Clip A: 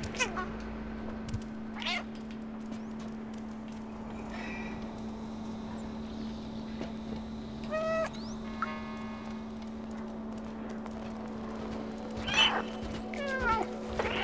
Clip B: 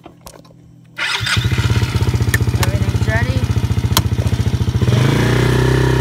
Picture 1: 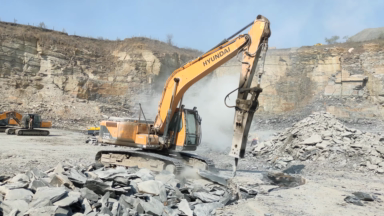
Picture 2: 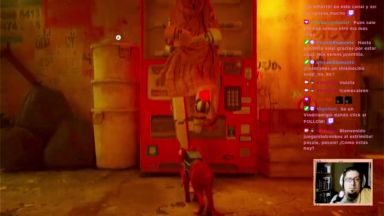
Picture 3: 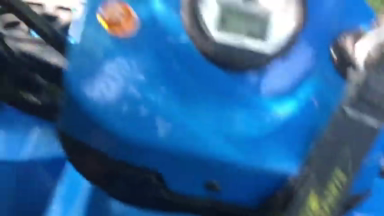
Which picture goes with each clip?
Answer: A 2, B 3